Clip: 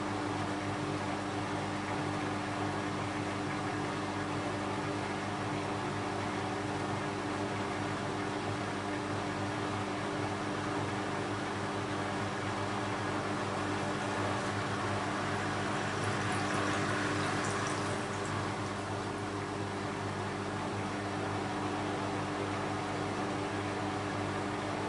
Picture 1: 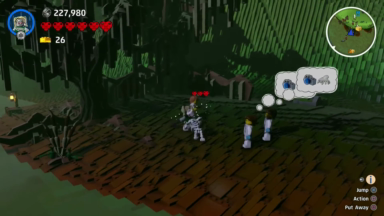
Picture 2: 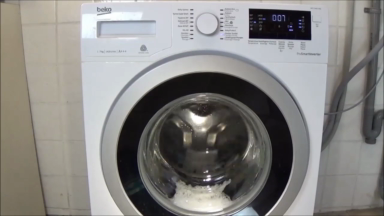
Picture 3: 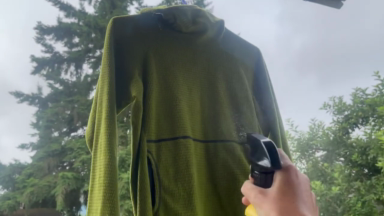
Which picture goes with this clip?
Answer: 2